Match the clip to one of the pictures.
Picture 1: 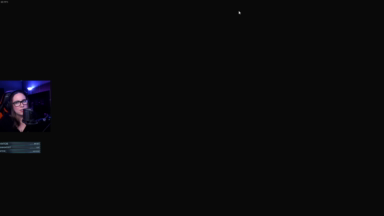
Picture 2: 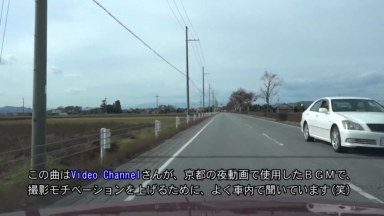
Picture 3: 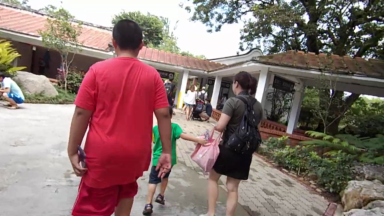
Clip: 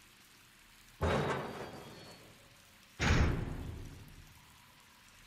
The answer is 1